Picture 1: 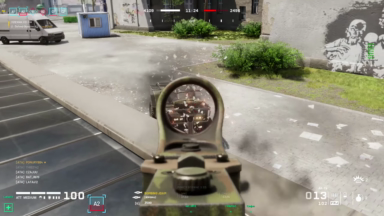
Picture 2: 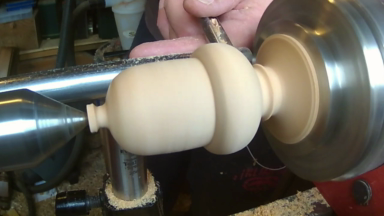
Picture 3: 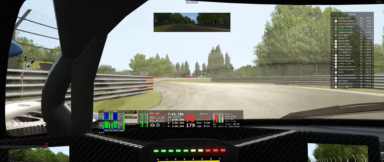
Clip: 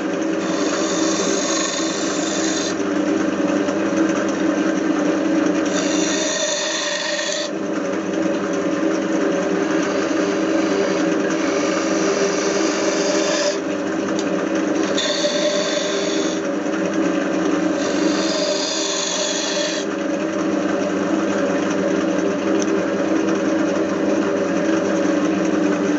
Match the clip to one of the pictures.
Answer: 2